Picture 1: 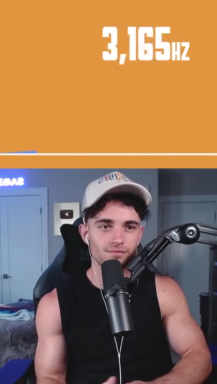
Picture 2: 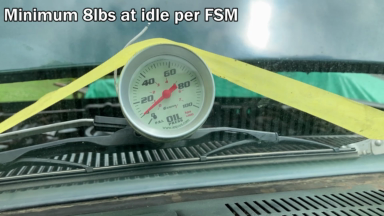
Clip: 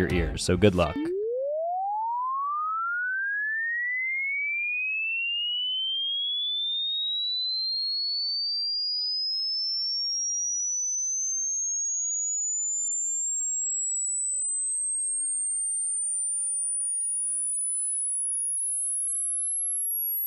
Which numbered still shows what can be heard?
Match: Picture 1